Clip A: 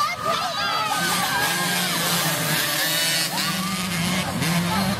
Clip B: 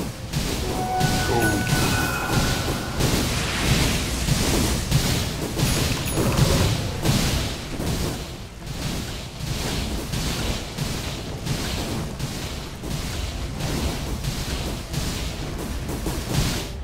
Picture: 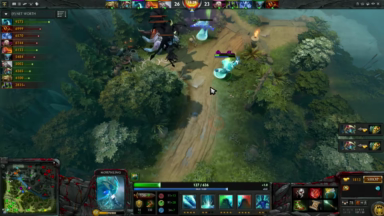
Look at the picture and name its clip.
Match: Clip B